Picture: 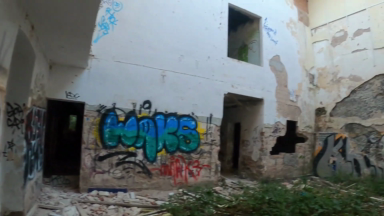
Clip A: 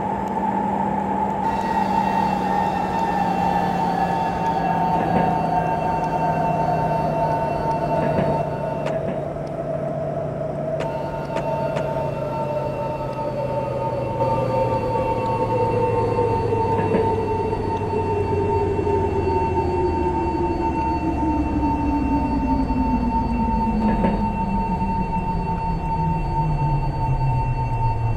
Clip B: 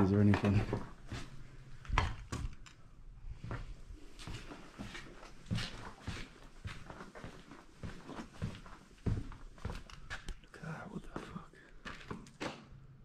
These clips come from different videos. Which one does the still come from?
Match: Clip B